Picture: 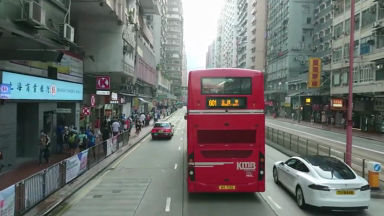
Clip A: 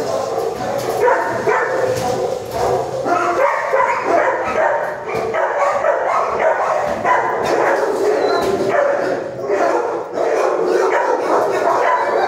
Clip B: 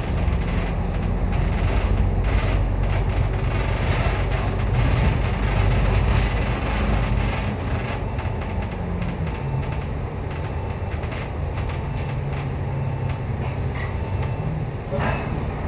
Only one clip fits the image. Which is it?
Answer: B